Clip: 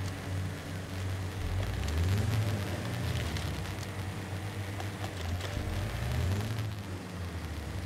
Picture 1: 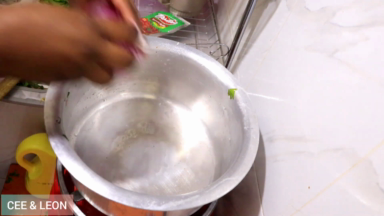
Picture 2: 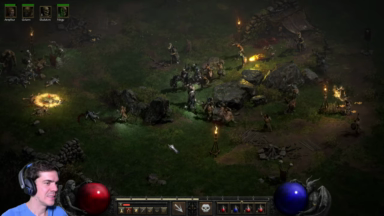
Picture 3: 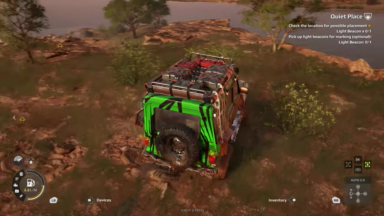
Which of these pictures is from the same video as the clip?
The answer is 3